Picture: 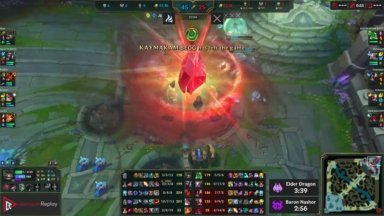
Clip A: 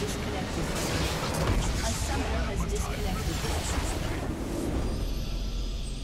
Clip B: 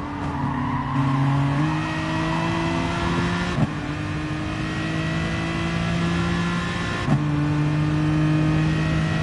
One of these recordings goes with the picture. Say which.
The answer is A